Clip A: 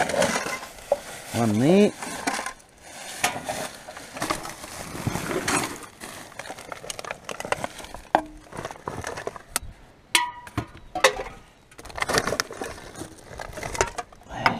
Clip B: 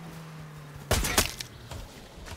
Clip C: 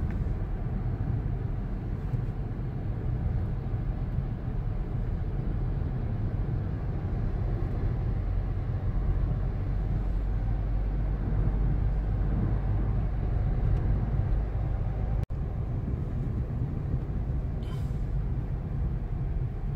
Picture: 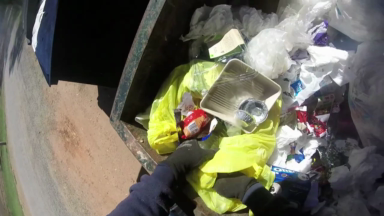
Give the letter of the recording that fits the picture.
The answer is A